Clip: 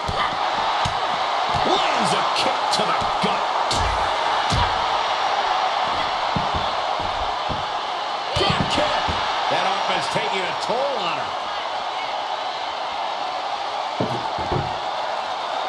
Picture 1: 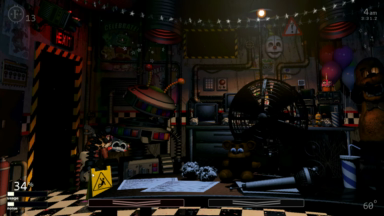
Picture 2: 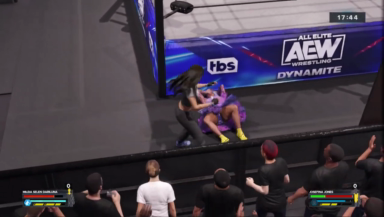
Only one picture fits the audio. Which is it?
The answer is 2